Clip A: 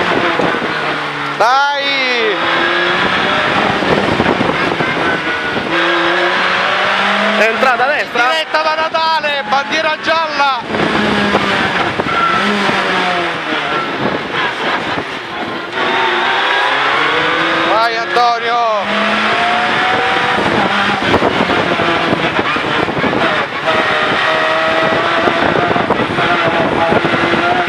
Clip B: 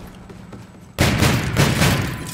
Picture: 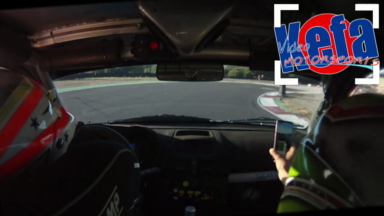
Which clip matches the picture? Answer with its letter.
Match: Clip A